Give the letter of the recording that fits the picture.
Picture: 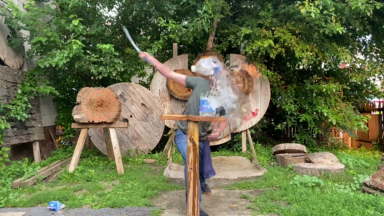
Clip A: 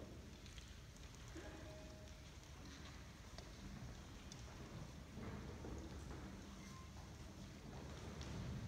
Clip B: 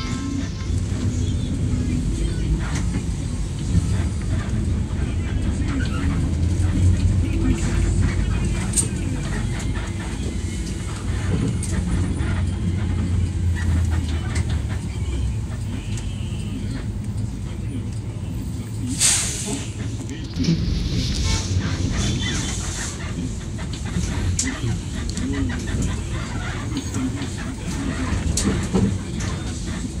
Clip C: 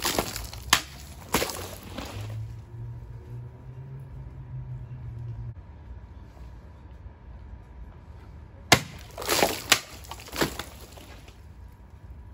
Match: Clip C